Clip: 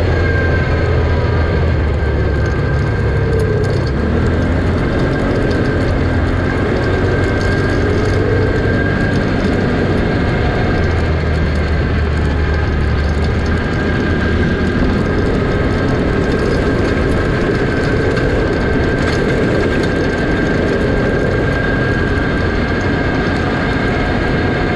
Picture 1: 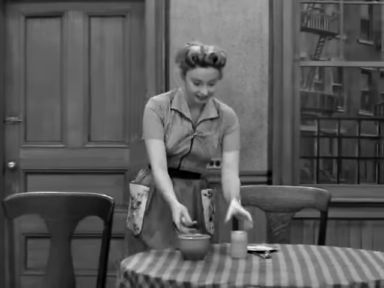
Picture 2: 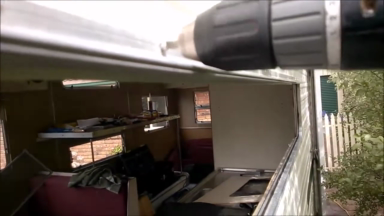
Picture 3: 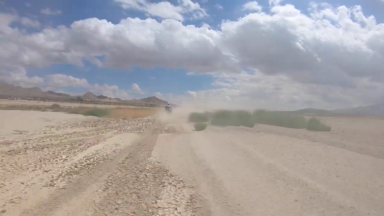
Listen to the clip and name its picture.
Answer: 3